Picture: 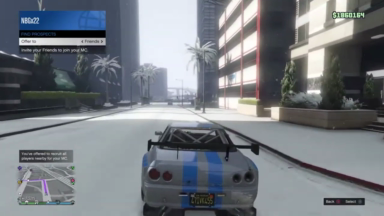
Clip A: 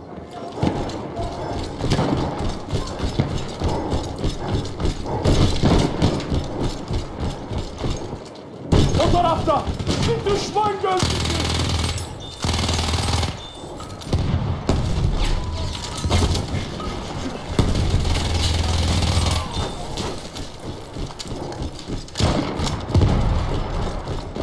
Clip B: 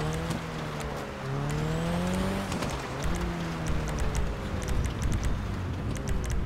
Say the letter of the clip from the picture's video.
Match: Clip B